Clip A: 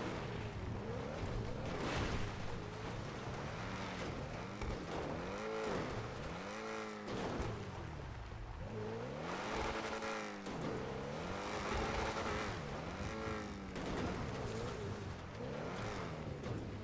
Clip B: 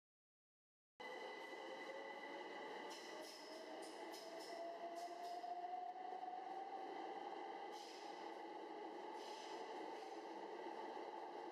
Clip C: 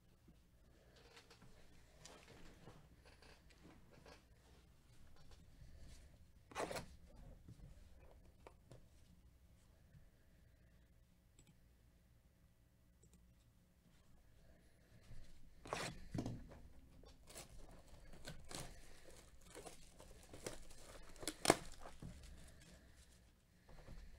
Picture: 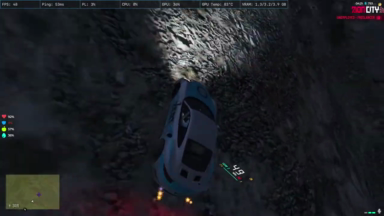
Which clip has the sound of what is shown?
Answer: A